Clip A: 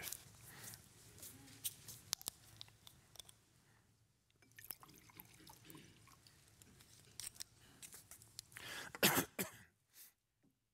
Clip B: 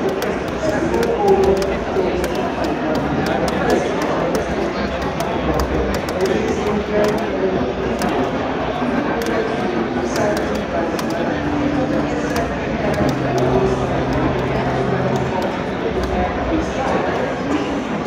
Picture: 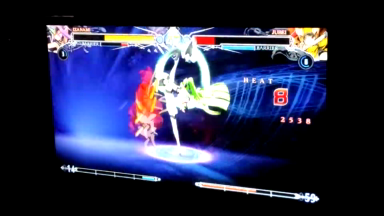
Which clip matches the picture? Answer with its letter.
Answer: B